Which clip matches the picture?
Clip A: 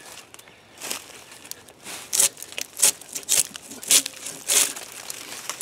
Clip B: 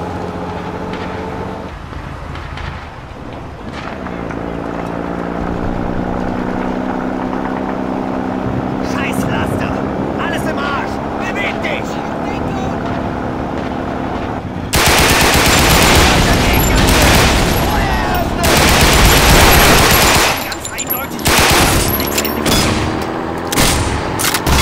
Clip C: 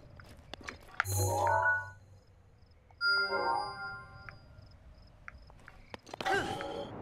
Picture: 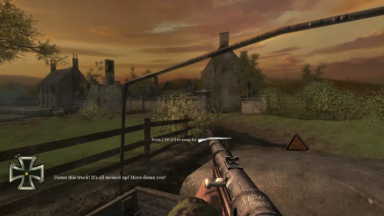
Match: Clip B